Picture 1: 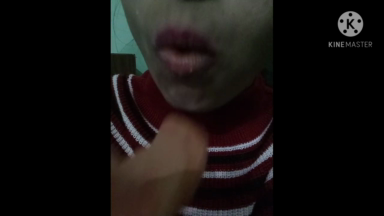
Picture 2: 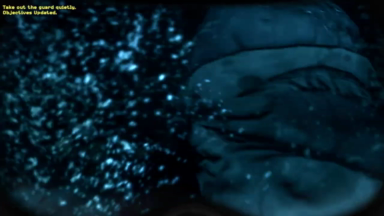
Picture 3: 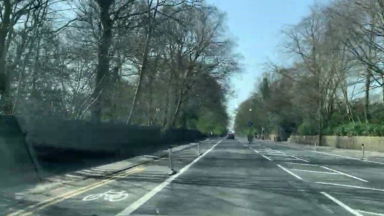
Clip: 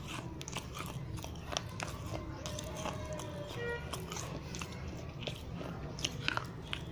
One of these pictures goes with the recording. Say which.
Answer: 1